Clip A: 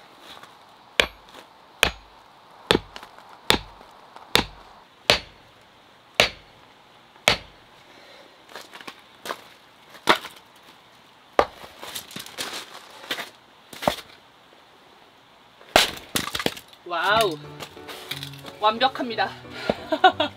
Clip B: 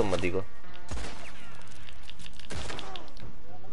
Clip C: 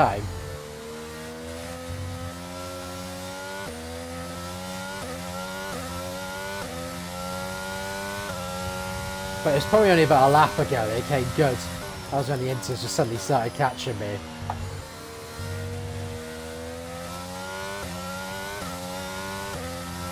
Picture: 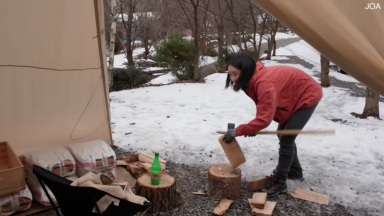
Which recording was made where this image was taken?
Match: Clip A